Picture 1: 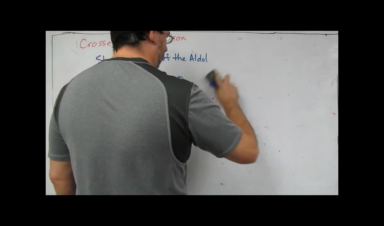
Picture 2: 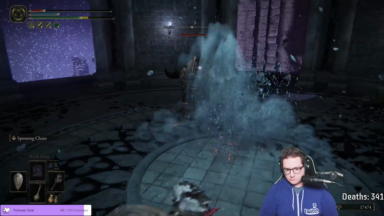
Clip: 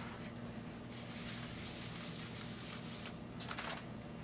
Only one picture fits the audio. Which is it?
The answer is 1